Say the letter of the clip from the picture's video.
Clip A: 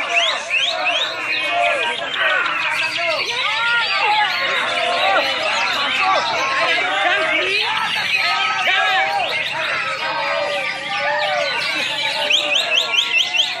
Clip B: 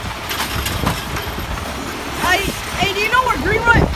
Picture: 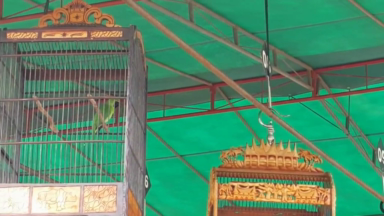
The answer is A